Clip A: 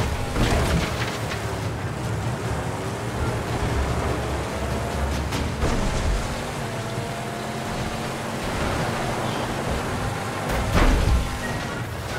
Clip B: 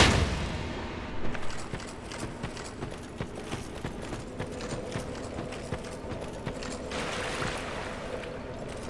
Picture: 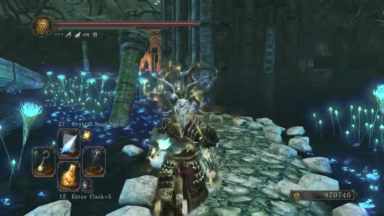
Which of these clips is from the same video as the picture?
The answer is B